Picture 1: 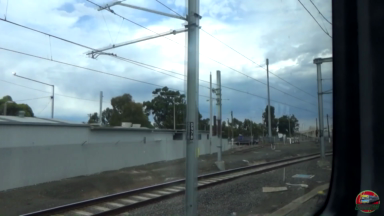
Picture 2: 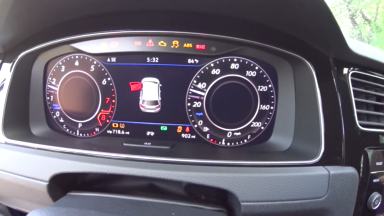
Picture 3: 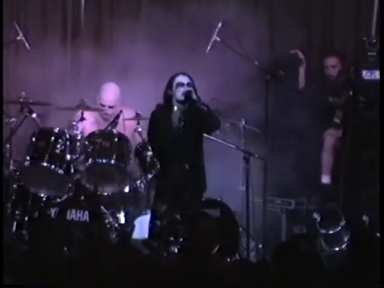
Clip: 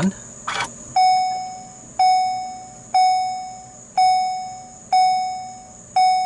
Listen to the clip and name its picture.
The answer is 2